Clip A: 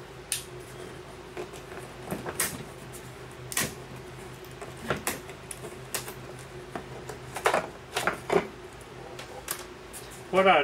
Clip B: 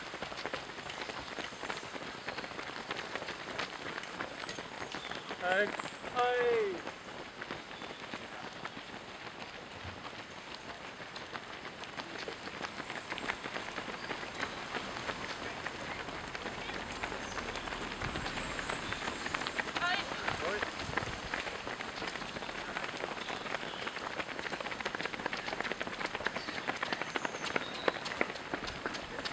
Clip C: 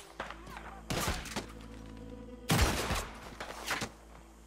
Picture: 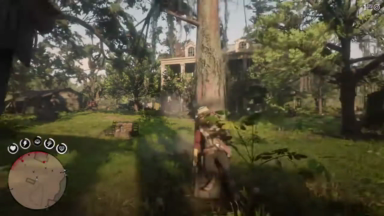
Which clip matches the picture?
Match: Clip C